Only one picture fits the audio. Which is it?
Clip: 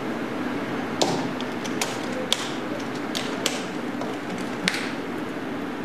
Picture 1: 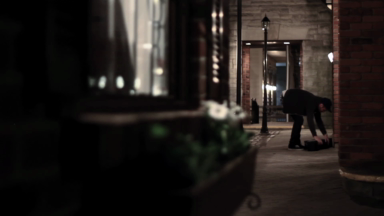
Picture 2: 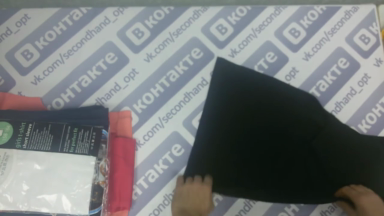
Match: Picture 1